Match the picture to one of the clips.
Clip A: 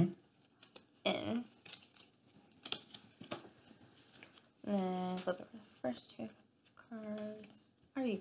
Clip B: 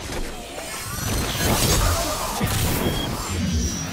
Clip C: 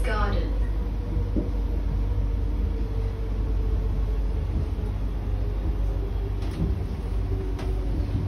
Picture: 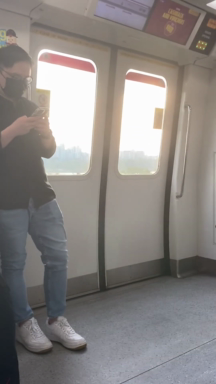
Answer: C